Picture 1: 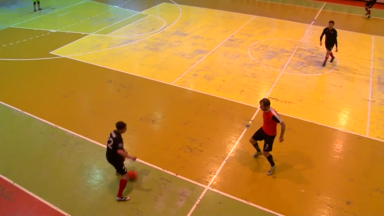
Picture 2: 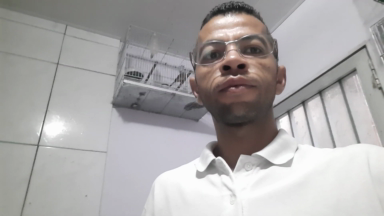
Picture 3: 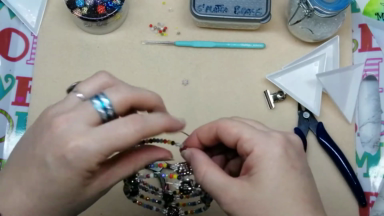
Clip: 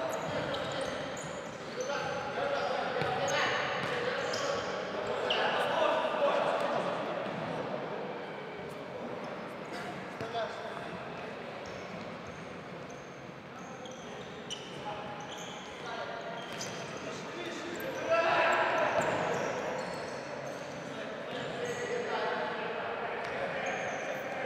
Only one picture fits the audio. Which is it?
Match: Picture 1